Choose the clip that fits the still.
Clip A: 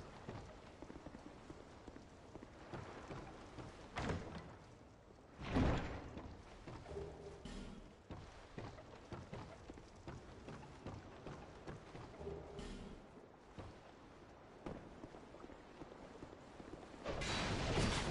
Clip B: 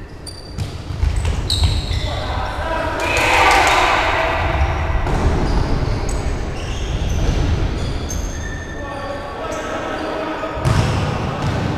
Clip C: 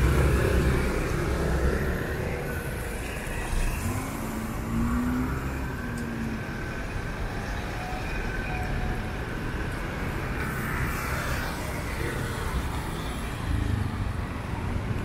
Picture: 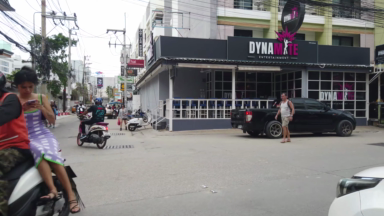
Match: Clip C